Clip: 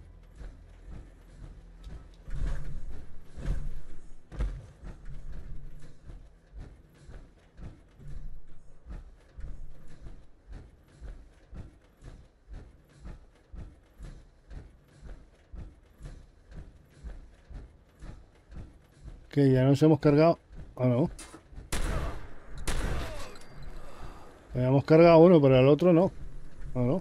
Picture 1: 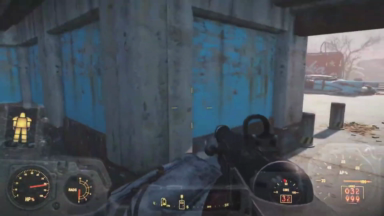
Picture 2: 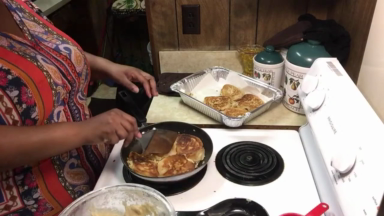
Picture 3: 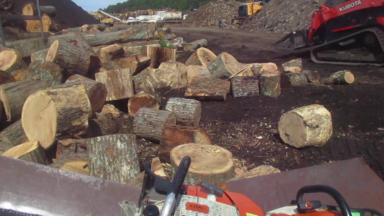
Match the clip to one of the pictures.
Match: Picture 1